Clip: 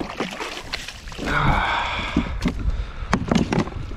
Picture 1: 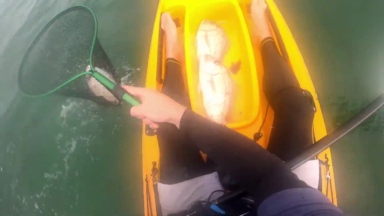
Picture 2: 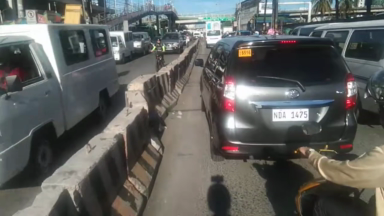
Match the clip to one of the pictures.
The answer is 1